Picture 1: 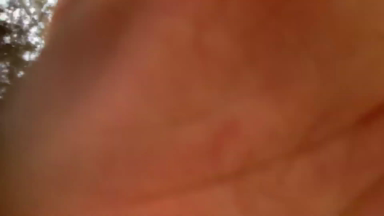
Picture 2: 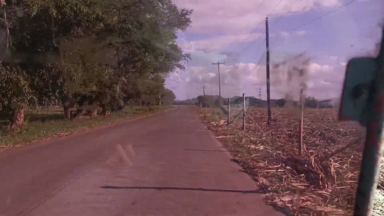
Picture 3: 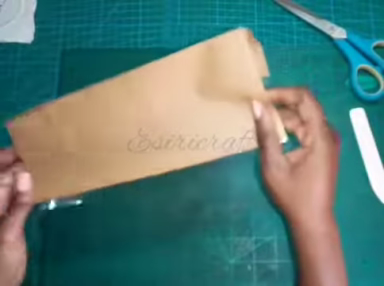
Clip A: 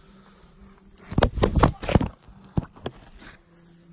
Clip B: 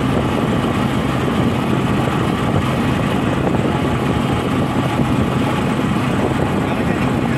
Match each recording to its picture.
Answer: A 1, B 2